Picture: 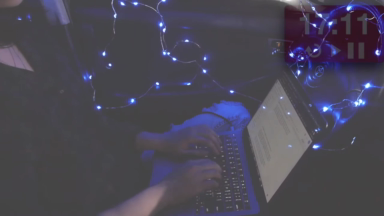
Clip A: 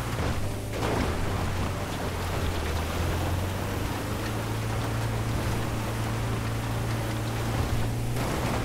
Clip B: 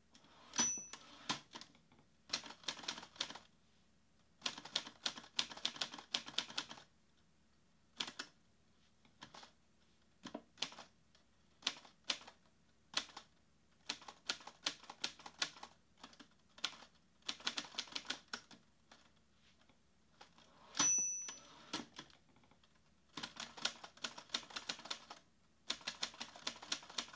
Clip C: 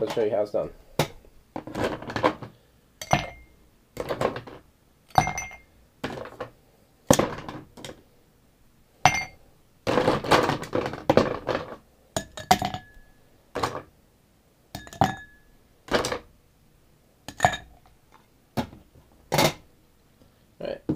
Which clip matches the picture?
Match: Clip B